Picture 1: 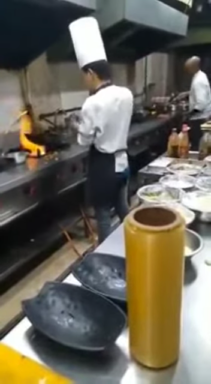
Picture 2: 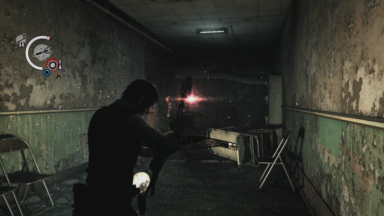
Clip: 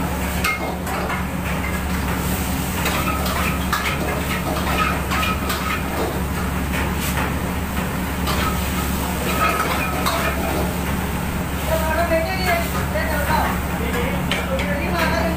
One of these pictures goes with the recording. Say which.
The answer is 1